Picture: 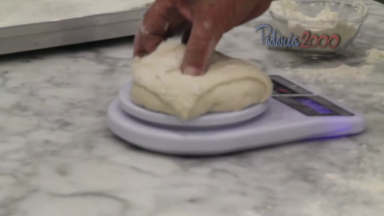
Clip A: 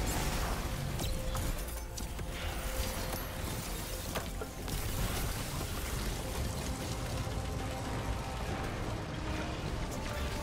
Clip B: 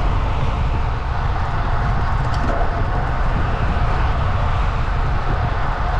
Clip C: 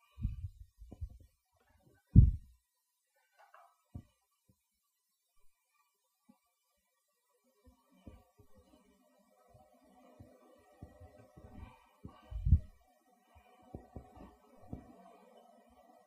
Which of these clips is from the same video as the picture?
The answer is C